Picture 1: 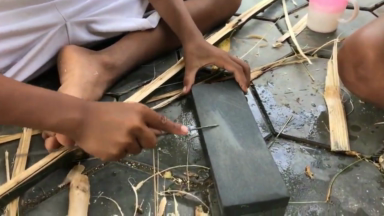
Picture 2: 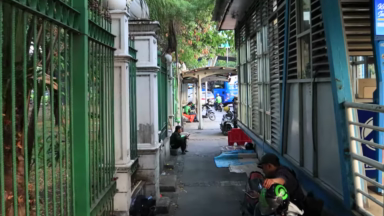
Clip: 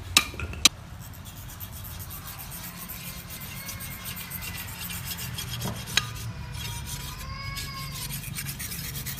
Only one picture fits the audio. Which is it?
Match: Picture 1